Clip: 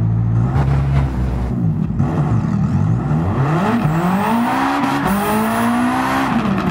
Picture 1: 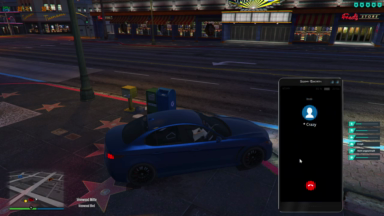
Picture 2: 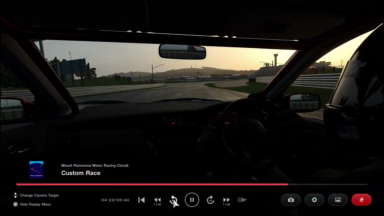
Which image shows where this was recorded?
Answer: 2